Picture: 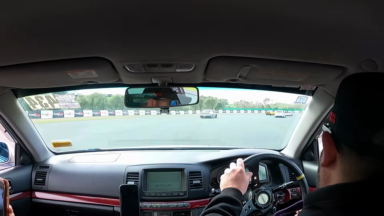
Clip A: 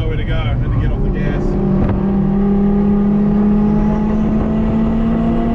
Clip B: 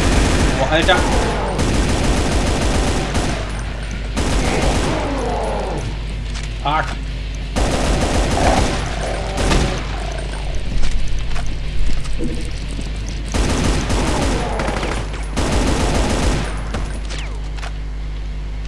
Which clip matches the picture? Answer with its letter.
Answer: A